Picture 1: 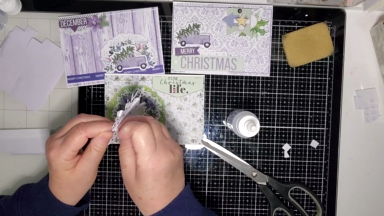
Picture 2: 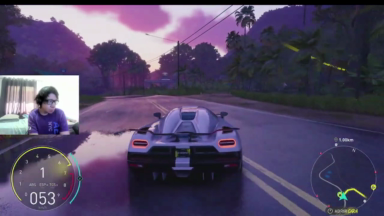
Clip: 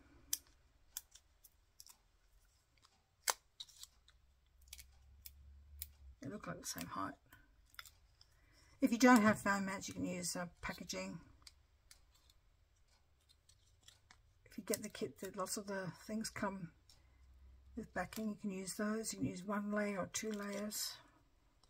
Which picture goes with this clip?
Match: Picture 1